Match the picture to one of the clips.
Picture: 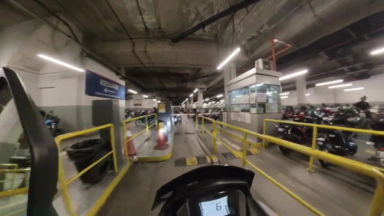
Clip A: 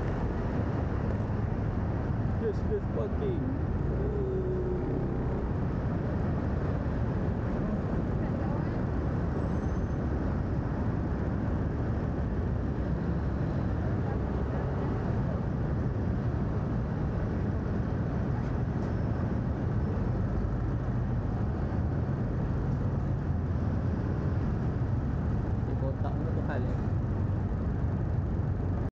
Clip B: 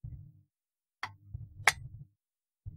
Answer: A